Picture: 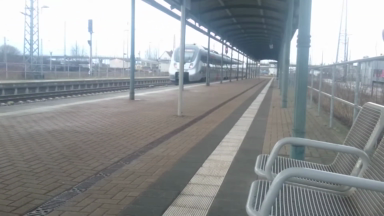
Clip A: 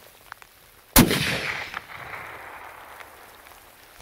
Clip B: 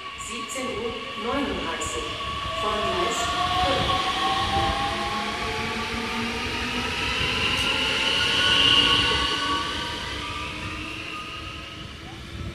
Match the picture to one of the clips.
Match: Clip B